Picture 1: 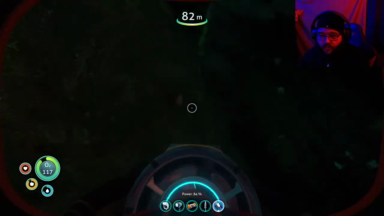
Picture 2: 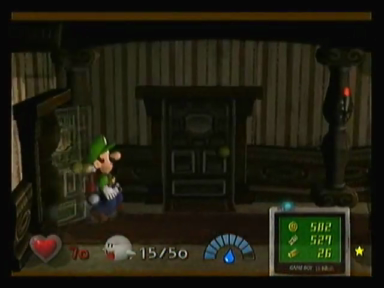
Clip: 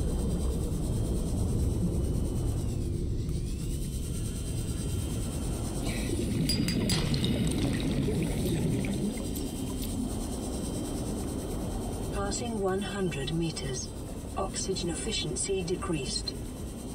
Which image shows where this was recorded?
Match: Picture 1